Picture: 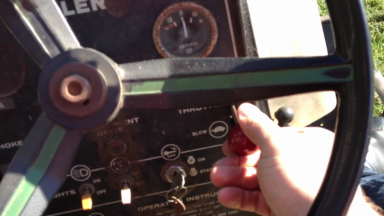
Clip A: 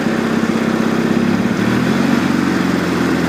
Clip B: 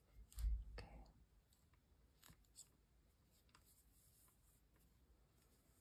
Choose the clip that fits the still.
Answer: A